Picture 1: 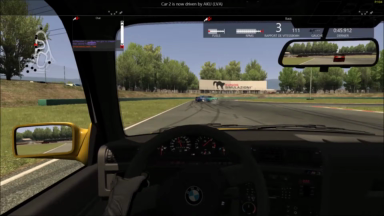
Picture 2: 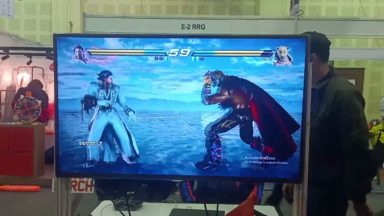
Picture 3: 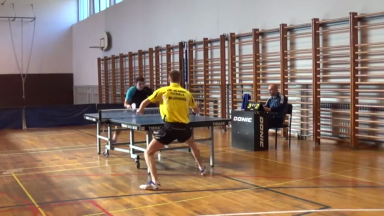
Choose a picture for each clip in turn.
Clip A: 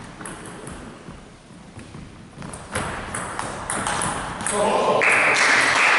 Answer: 3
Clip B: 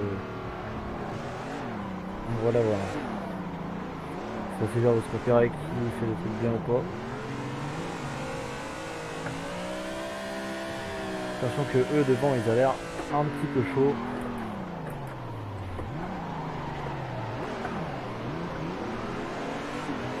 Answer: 1